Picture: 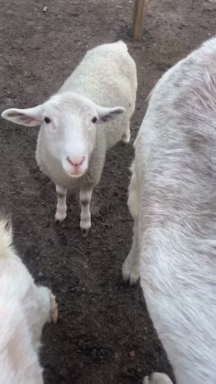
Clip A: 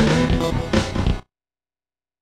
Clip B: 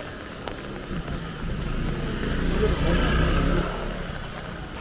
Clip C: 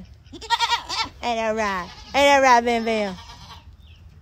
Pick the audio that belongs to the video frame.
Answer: C